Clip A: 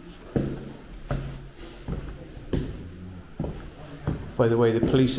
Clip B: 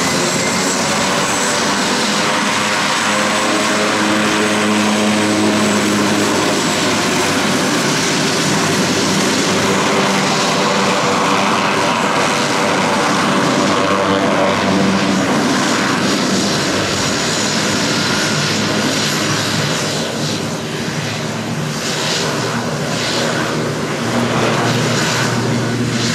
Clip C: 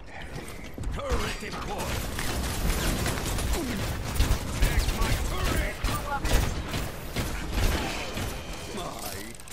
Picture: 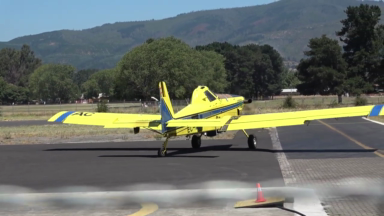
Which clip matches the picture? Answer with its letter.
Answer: B